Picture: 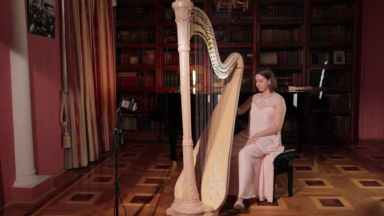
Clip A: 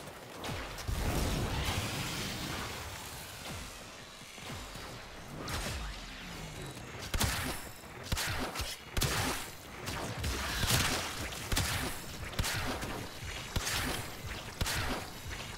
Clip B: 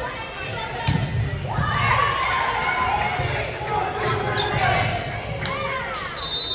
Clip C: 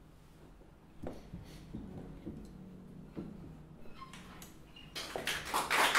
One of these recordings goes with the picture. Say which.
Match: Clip C